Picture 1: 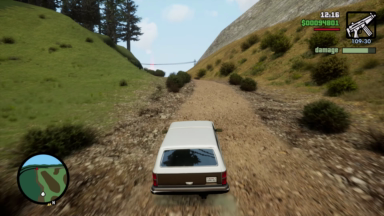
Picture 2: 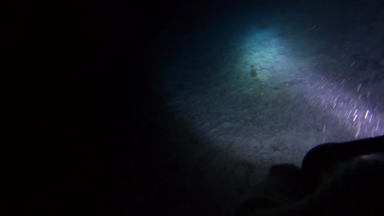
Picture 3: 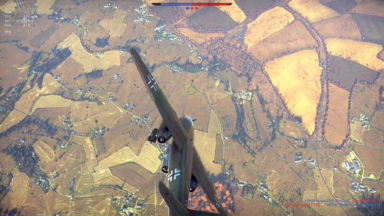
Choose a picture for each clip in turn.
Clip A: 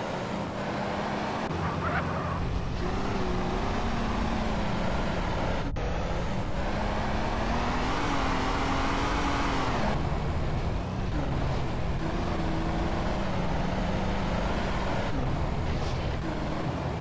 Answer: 1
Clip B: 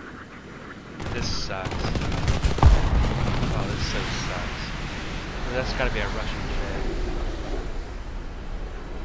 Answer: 3